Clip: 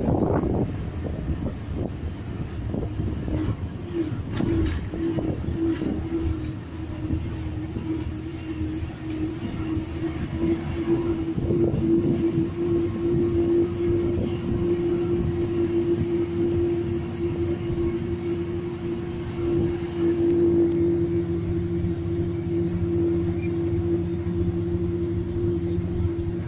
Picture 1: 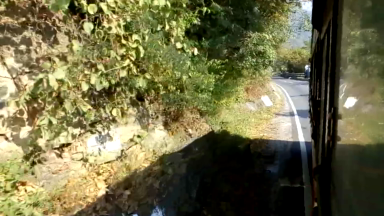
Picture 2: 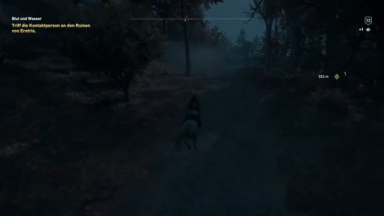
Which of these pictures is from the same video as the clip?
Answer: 1